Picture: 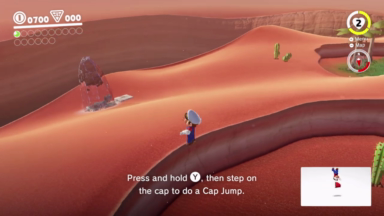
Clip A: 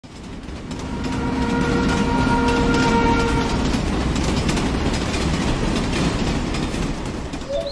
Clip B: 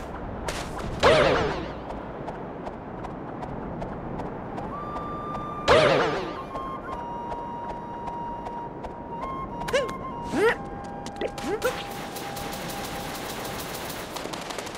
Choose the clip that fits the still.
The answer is B